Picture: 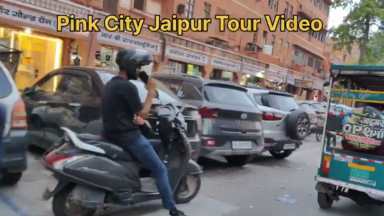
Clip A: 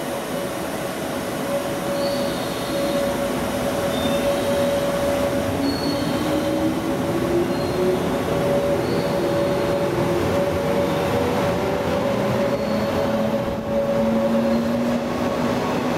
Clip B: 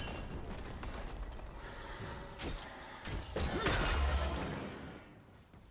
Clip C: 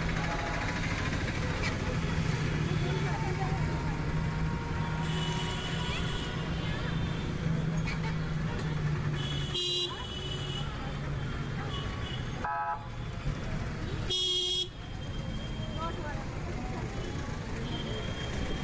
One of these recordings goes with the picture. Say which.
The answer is C